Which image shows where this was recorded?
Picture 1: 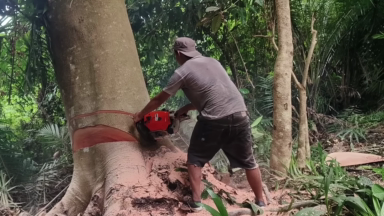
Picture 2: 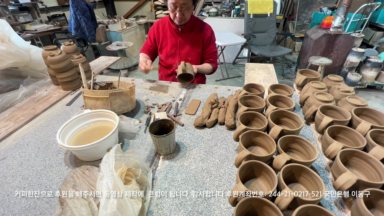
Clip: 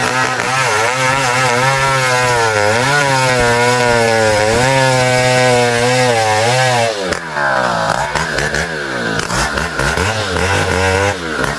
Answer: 1